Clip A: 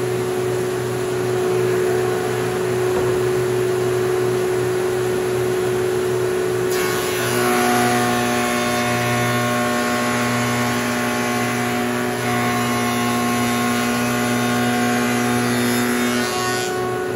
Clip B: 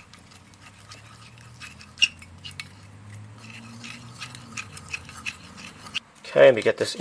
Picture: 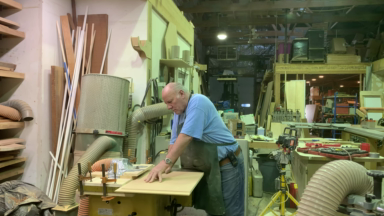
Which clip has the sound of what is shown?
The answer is A